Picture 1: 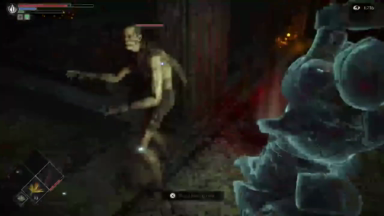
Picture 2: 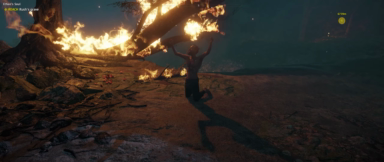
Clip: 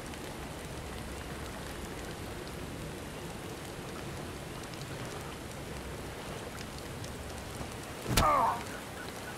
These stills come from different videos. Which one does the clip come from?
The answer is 2